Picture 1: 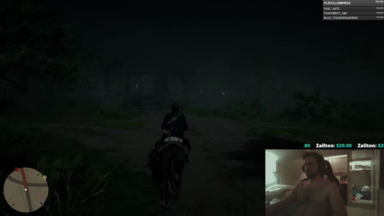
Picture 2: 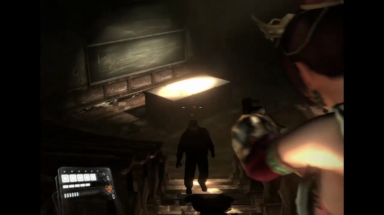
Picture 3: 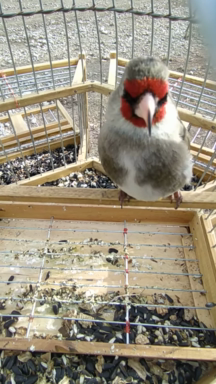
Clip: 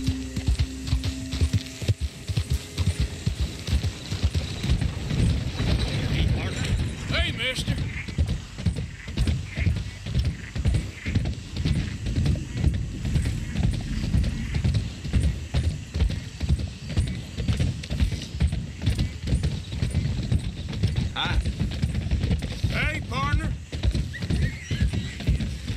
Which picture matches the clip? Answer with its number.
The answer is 1